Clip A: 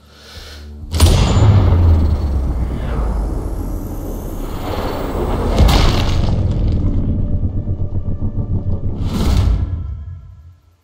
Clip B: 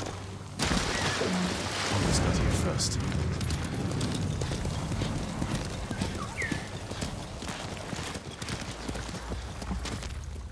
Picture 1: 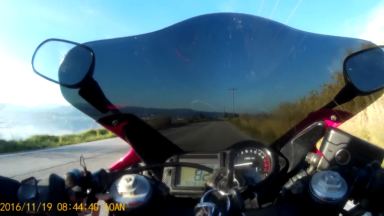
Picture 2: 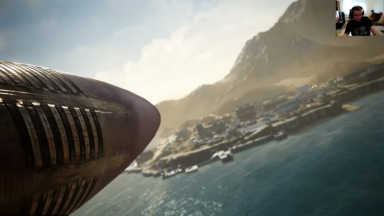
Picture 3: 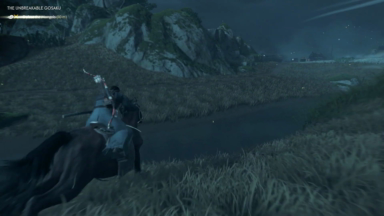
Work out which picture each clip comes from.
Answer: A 2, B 3